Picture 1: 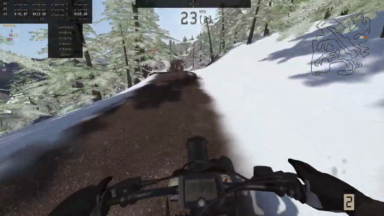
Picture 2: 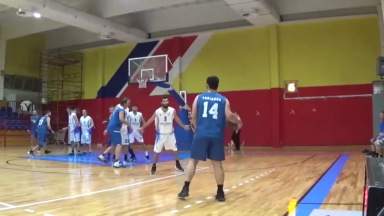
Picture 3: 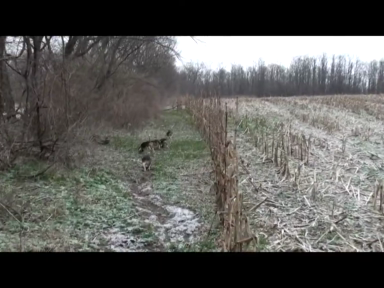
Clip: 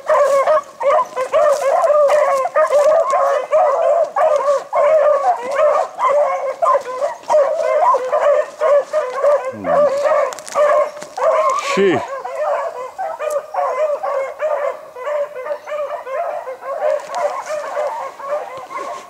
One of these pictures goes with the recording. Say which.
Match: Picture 3